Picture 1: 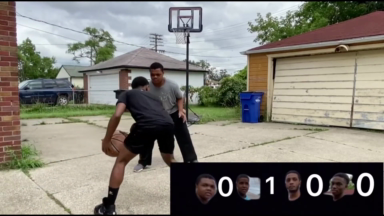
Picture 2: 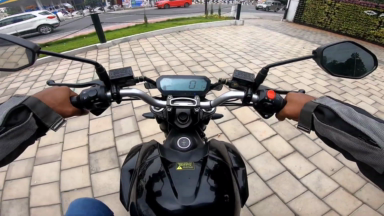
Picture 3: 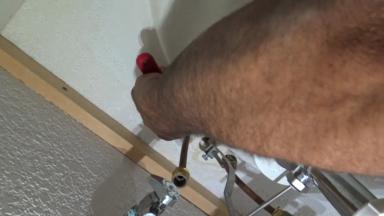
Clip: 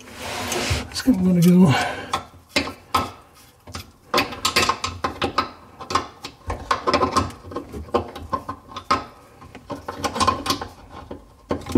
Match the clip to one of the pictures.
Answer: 3